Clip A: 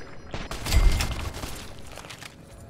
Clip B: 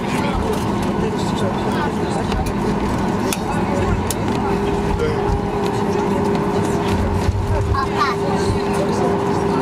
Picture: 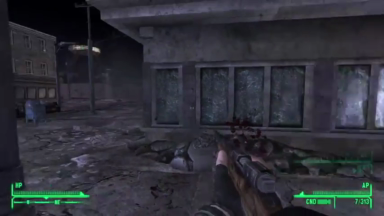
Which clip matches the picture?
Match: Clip A